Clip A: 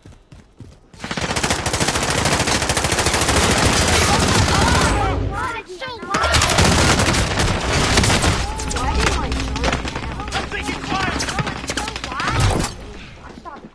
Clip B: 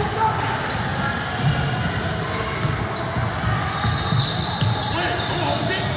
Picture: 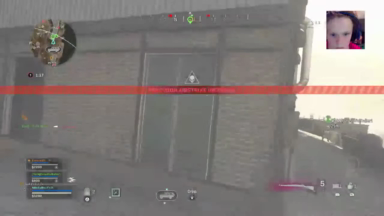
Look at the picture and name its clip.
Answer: A